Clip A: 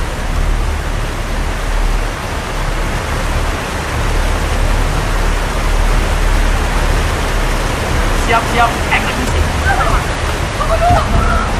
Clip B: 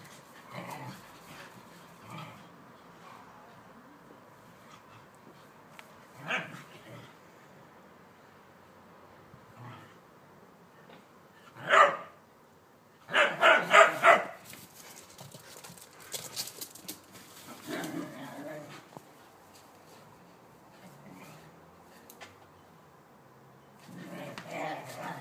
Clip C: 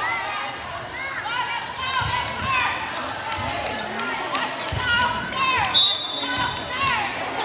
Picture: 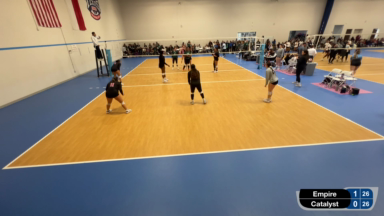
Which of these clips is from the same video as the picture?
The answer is C